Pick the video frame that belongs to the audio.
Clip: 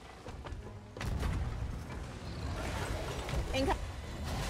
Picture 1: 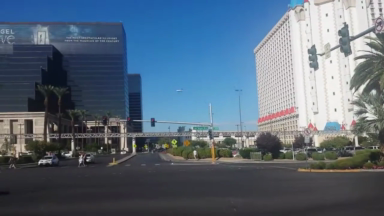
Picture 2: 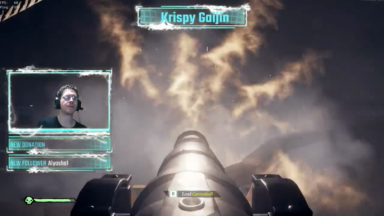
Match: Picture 2